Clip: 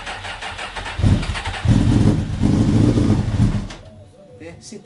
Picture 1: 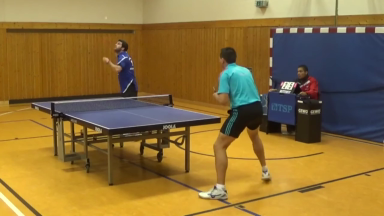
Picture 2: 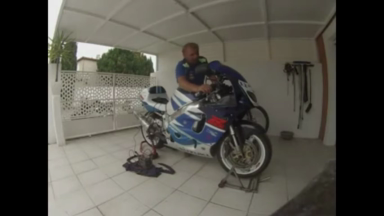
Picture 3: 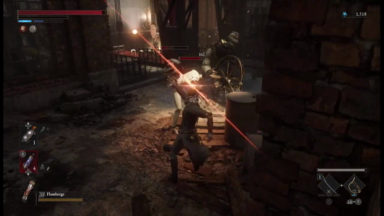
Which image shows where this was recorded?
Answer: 2